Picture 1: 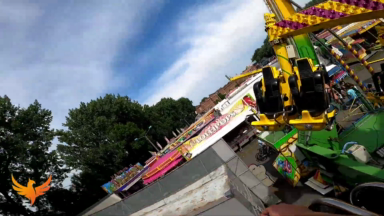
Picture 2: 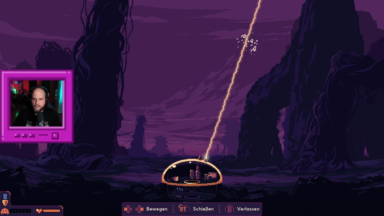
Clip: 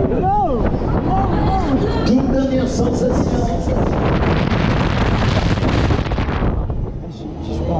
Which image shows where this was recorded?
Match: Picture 1